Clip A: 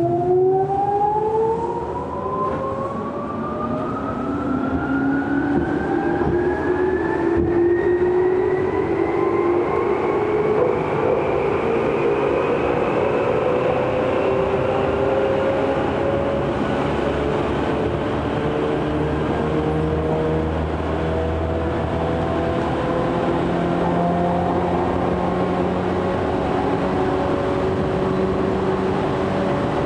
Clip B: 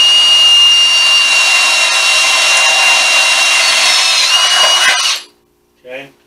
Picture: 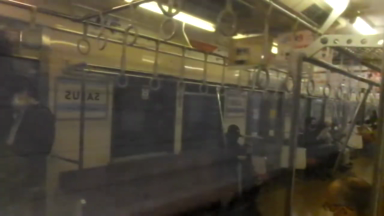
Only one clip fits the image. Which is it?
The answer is A